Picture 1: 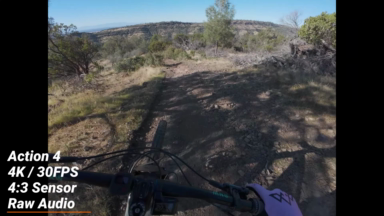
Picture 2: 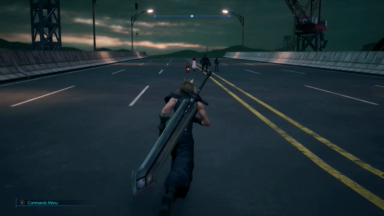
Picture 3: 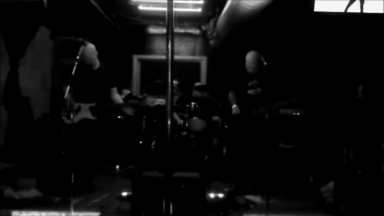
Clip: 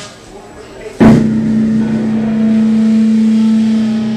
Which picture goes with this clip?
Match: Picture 3